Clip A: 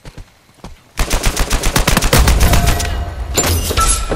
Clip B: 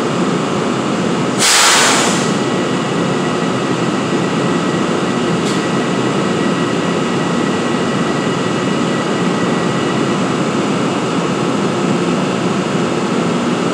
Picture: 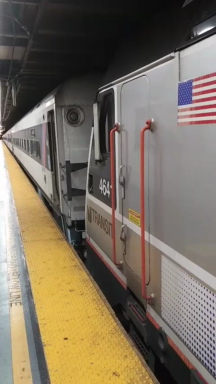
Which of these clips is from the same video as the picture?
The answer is B